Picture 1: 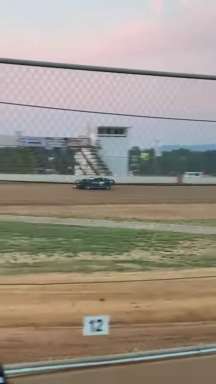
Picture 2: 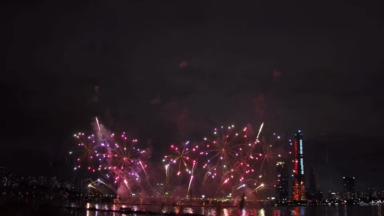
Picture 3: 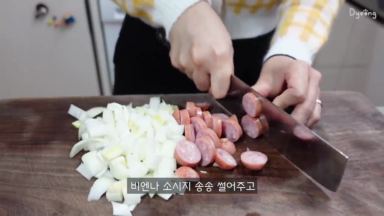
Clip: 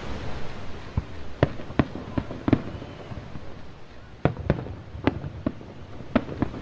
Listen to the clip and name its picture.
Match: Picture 2